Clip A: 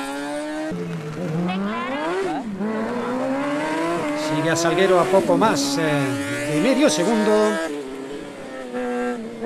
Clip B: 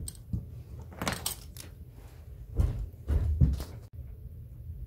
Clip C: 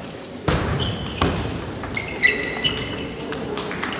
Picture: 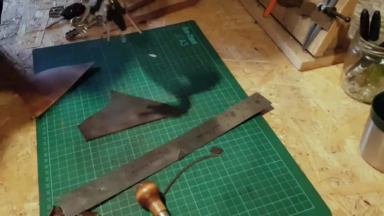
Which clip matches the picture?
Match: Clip B